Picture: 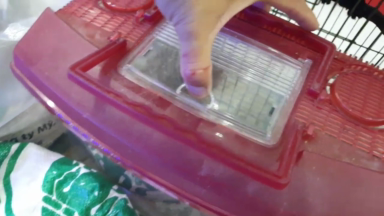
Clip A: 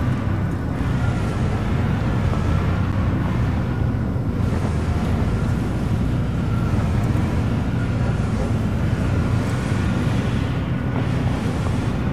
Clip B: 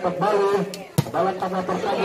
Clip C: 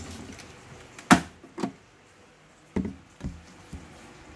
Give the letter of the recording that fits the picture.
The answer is C